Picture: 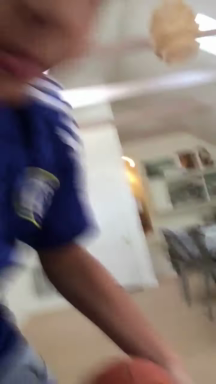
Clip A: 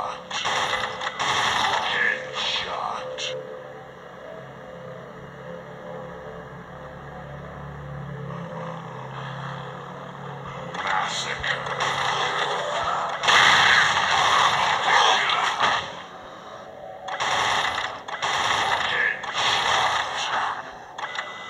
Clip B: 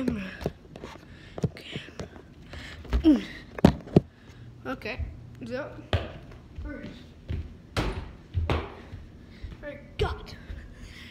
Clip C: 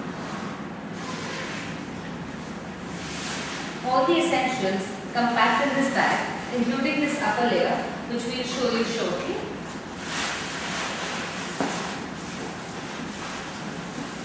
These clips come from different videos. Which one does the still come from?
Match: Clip B